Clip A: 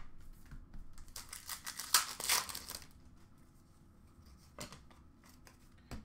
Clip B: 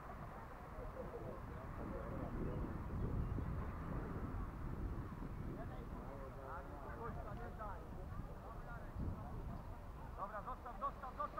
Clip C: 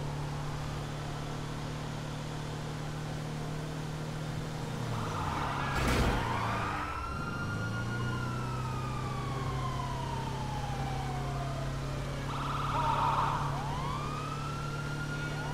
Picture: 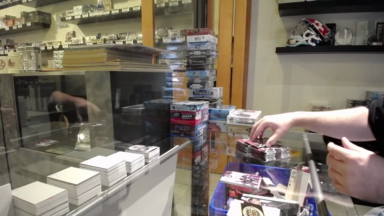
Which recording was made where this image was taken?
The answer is A